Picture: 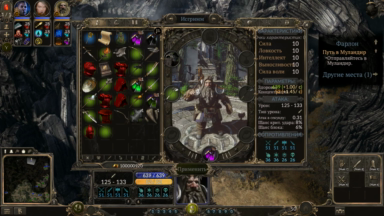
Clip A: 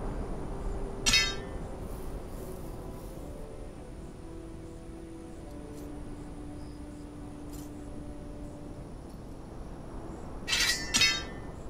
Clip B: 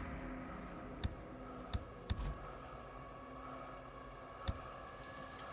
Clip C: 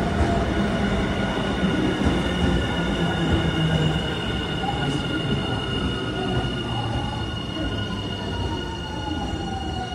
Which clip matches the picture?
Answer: A